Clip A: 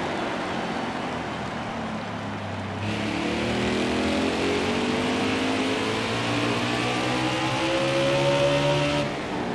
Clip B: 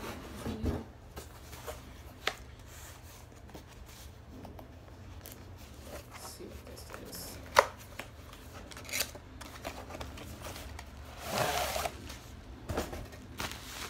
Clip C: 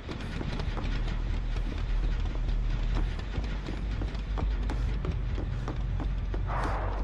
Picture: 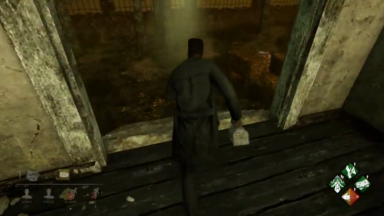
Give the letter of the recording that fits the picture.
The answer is C